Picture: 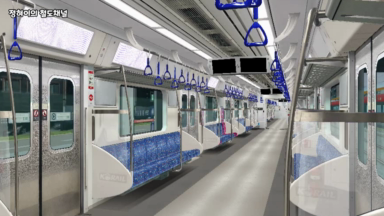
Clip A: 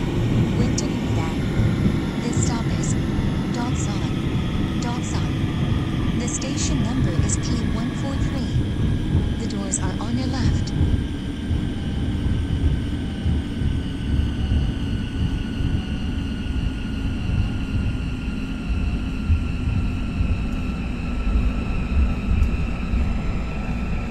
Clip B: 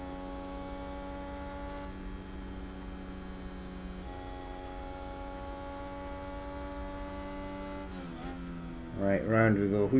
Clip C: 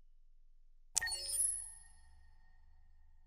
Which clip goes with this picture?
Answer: A